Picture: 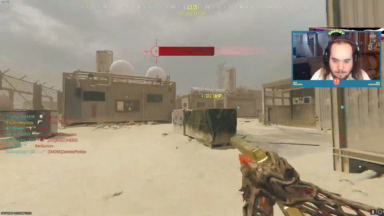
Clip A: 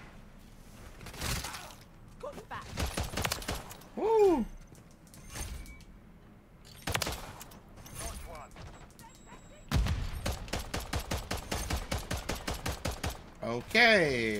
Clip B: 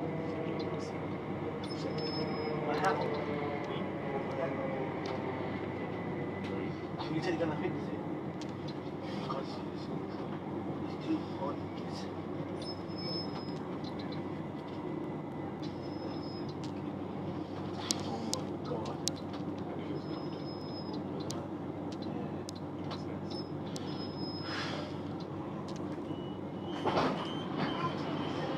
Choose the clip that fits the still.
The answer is A